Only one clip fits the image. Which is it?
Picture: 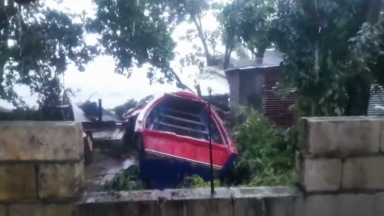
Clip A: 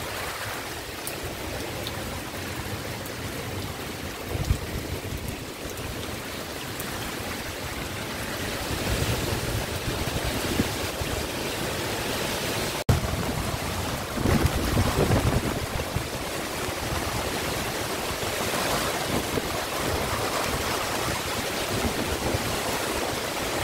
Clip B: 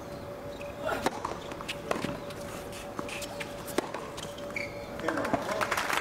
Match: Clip A